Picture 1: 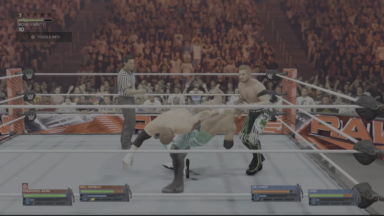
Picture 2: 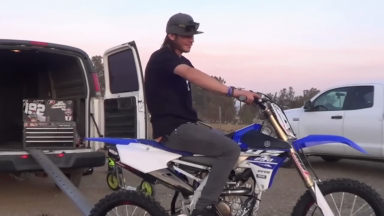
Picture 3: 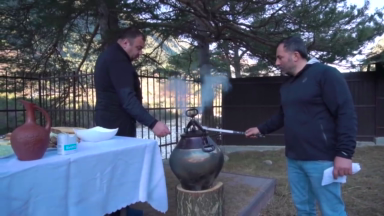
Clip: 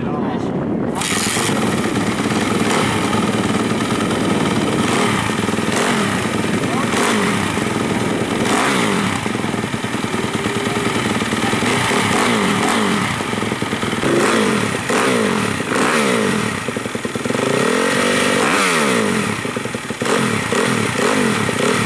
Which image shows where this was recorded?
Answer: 2